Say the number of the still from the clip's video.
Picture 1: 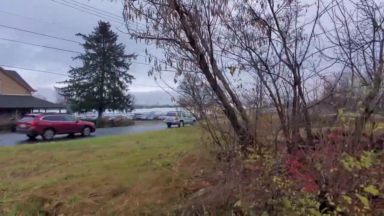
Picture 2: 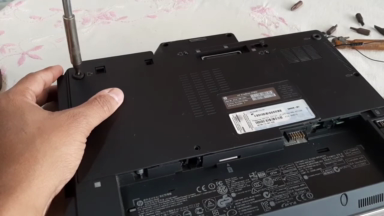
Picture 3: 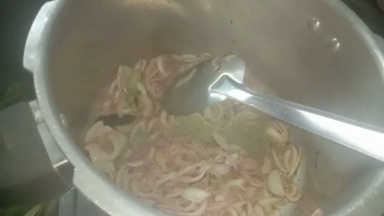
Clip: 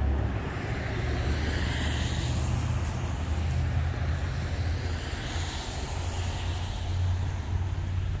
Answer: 1